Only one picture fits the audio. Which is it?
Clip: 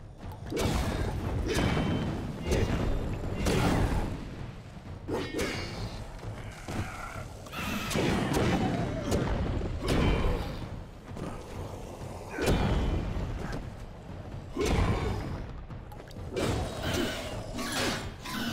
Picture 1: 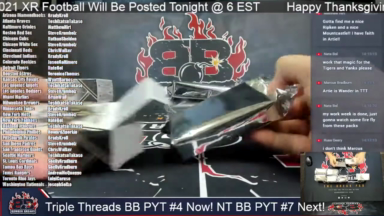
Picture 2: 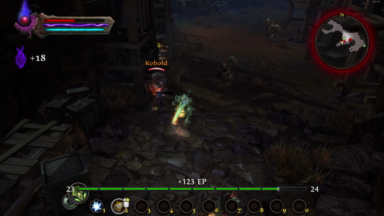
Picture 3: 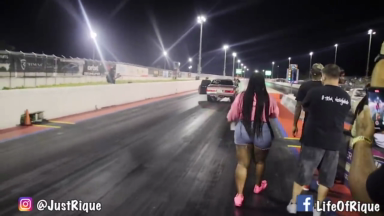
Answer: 2